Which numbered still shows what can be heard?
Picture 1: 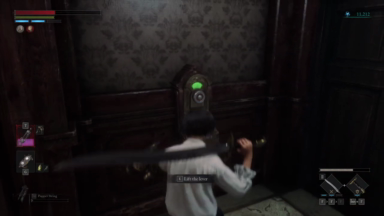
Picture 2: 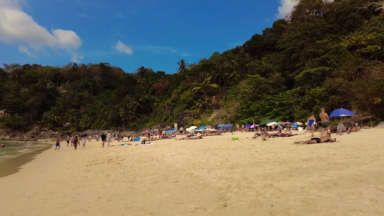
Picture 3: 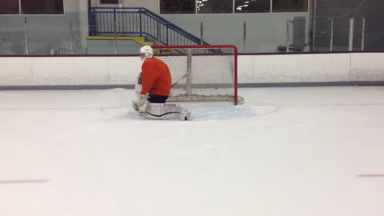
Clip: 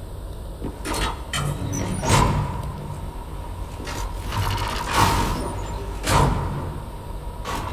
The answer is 1